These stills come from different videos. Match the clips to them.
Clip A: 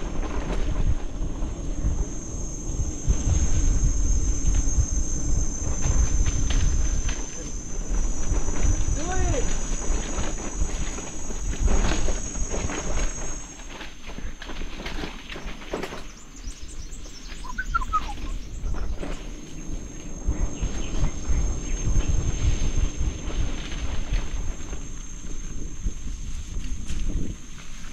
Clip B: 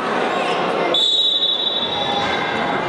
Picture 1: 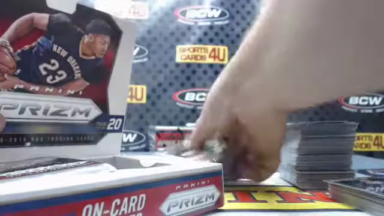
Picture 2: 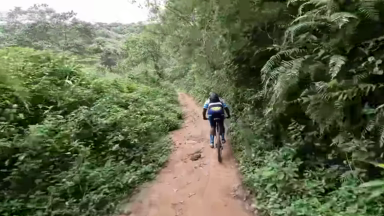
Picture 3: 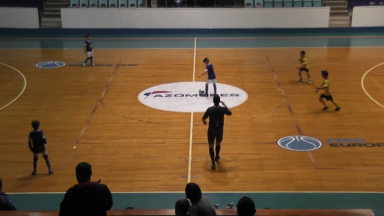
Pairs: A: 2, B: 3